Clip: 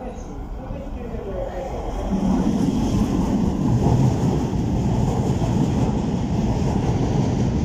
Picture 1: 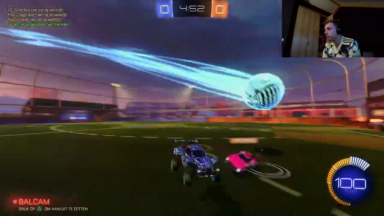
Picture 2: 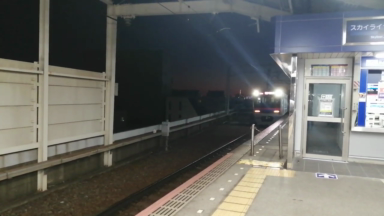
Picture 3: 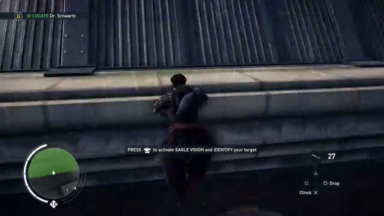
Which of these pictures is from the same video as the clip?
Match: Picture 2